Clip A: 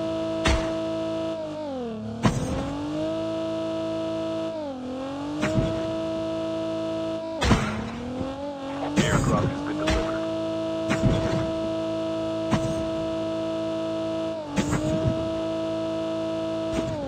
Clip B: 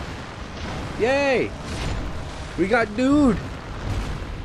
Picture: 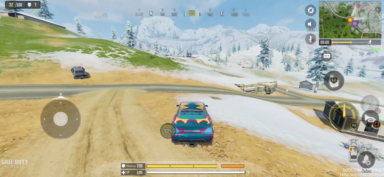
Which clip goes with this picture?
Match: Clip A